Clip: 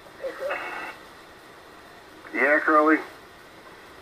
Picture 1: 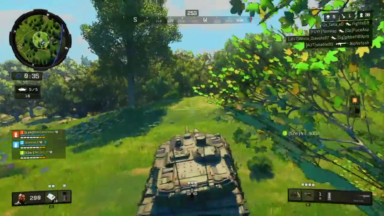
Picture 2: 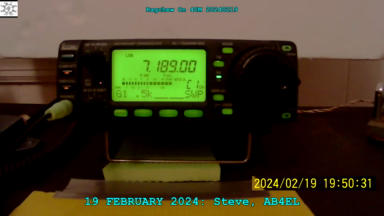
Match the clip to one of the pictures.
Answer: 2